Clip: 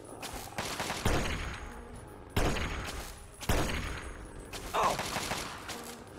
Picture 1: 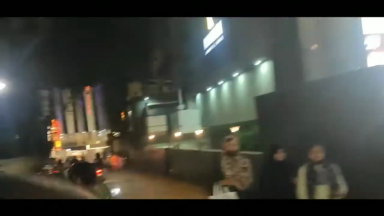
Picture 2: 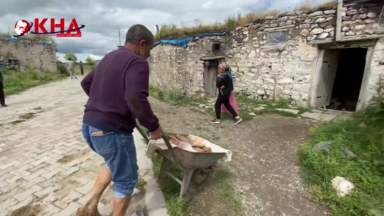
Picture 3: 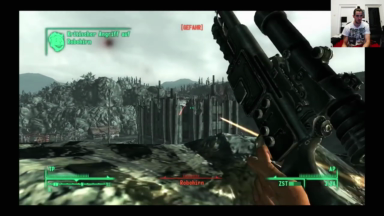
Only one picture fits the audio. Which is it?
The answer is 3